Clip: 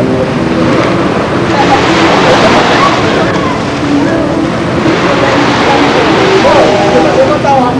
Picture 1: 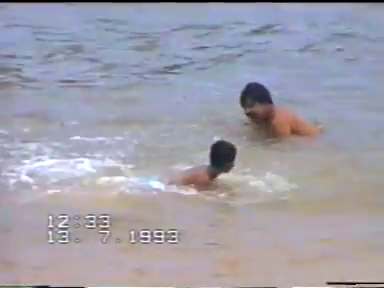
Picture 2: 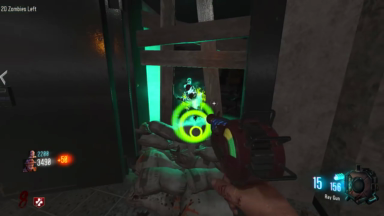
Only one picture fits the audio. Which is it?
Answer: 1